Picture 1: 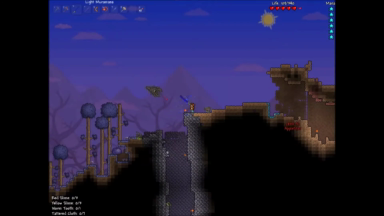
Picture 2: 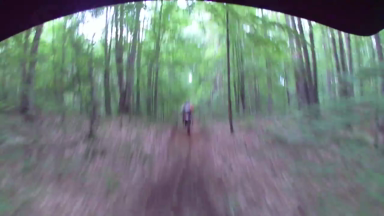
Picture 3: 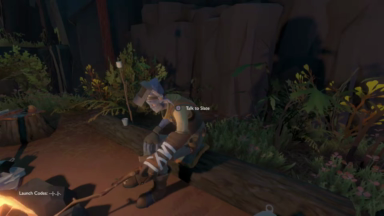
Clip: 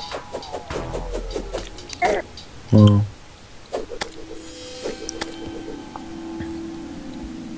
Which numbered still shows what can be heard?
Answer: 1